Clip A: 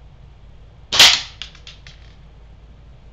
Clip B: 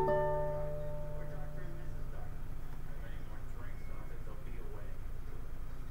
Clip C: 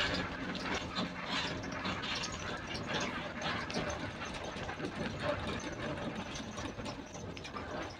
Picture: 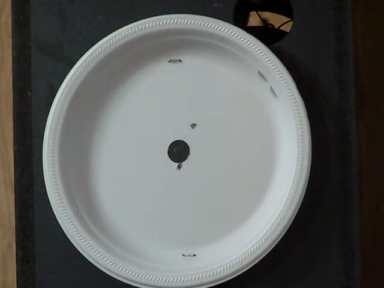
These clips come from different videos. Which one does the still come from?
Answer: A